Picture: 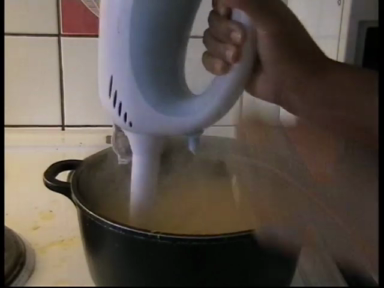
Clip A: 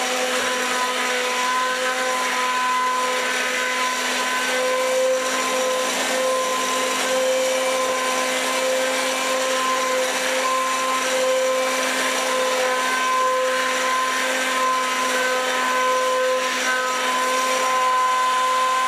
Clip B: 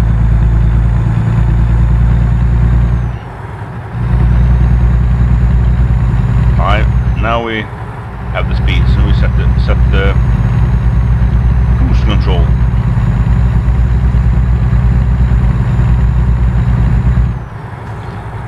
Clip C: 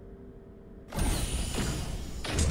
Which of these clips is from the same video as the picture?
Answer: A